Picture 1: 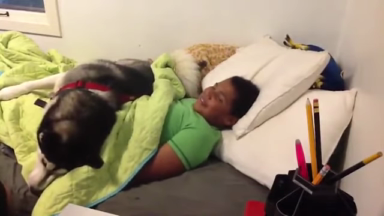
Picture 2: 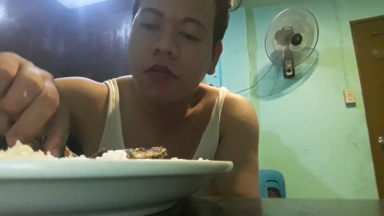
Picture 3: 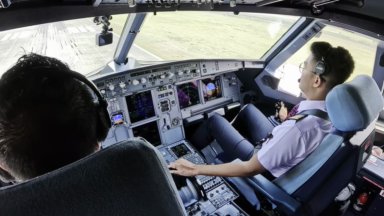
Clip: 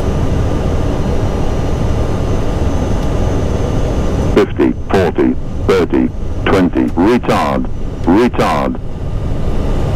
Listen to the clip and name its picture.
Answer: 3